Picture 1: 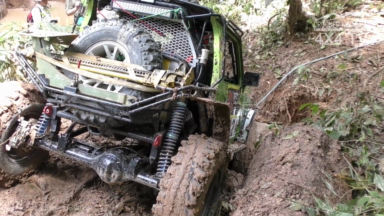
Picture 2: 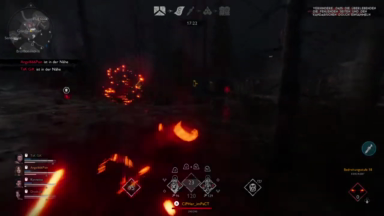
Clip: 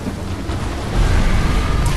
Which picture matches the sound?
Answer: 2